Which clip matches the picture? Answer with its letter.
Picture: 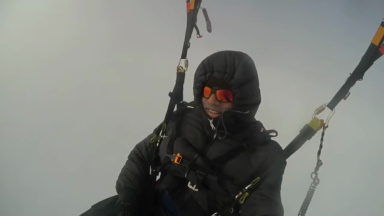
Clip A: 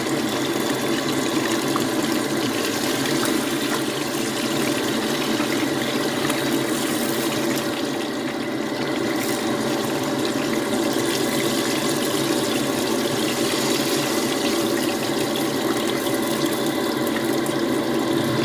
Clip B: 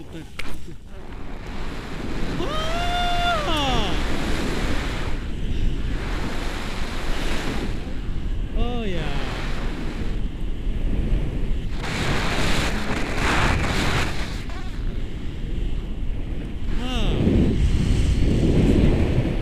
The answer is B